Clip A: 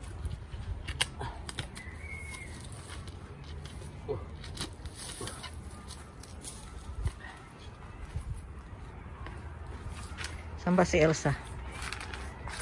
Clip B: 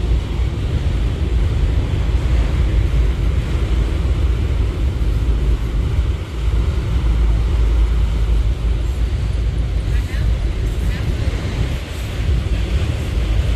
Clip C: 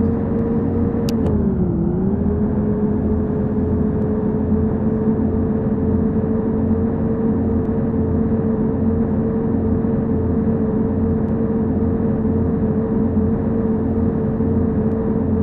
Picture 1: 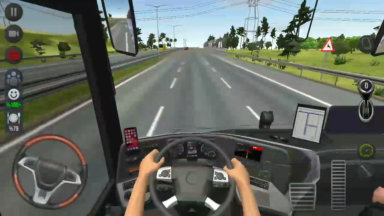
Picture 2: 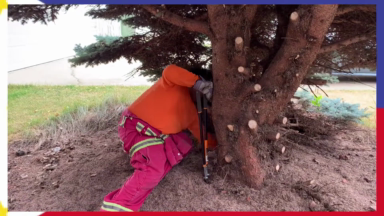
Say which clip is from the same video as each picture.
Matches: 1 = C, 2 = A